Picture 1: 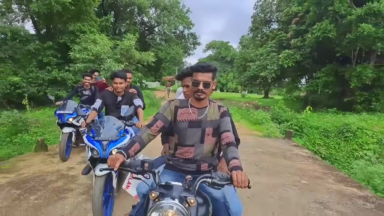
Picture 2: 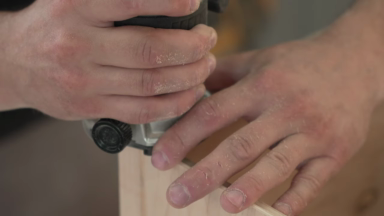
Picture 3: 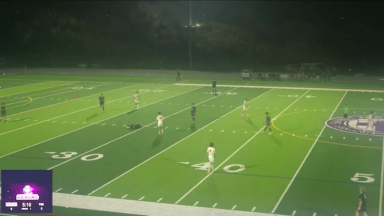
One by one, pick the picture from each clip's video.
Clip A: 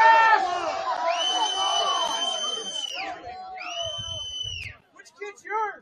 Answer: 3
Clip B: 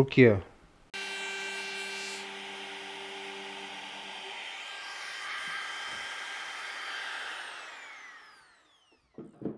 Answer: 2